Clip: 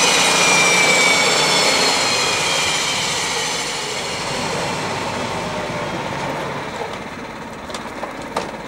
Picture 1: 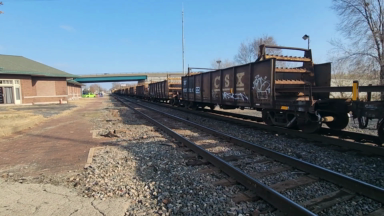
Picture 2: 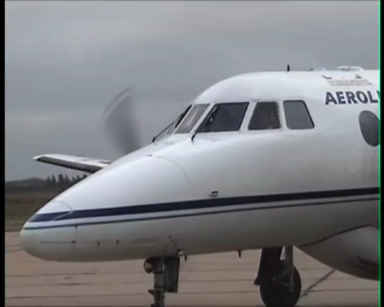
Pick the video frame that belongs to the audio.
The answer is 2